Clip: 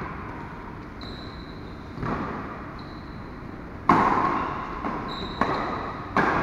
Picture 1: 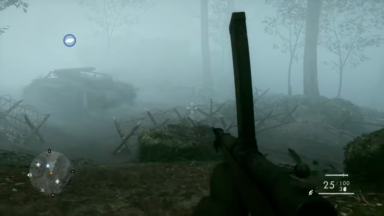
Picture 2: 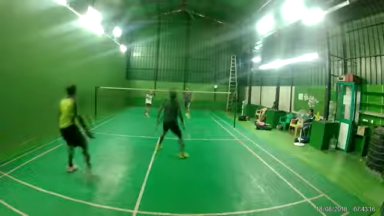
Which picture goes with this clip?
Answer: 2